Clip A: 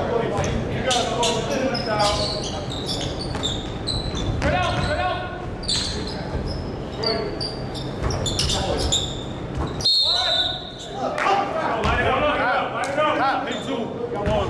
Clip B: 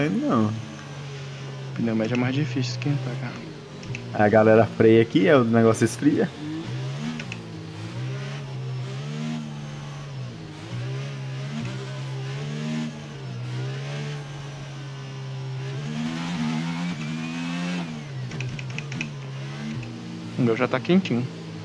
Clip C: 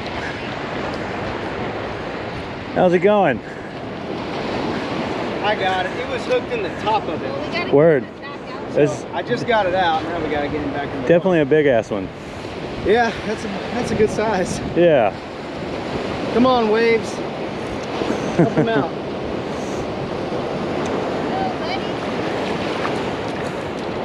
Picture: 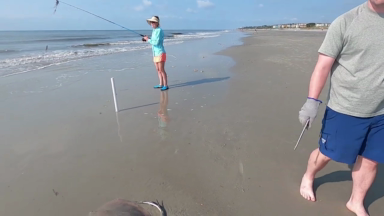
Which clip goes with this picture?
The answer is C